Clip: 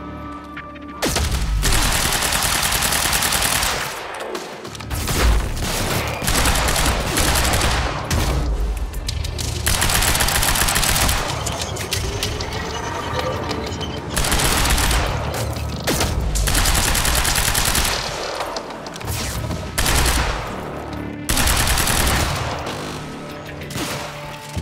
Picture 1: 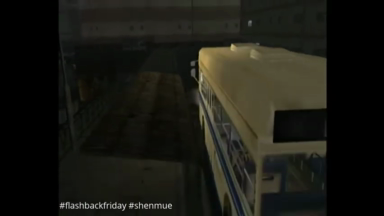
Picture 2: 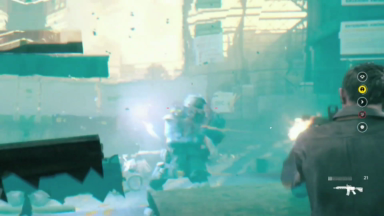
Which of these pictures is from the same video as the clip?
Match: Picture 2